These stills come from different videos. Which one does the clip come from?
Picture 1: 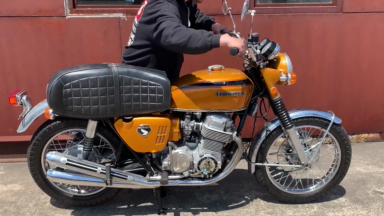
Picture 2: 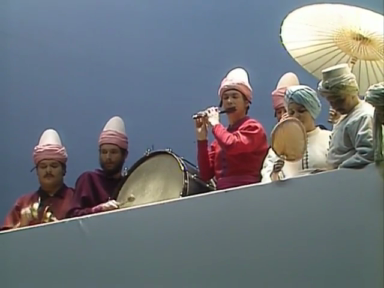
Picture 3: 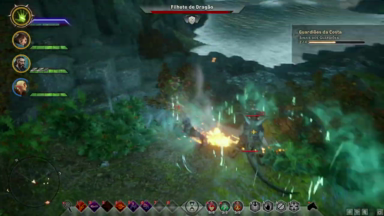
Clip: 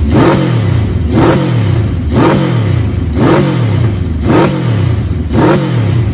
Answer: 1